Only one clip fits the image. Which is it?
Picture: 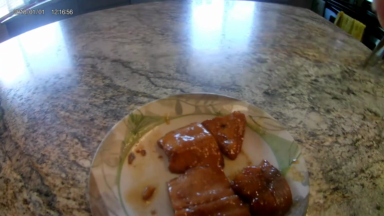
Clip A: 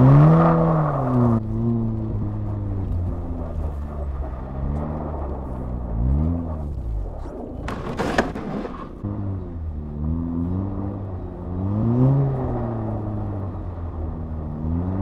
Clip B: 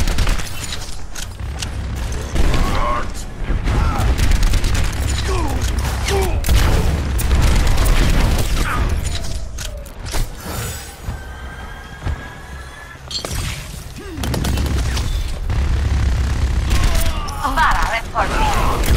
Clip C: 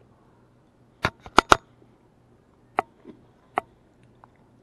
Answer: C